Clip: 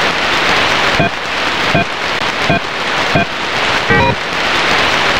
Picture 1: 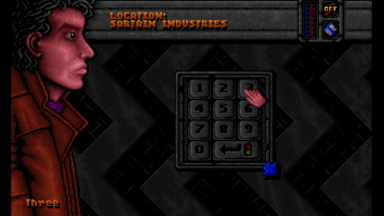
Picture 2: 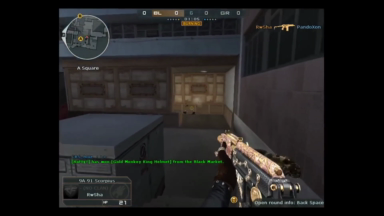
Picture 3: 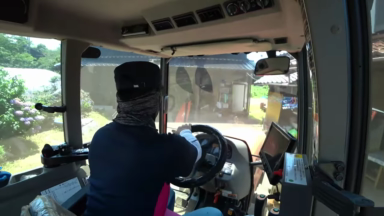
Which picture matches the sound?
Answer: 1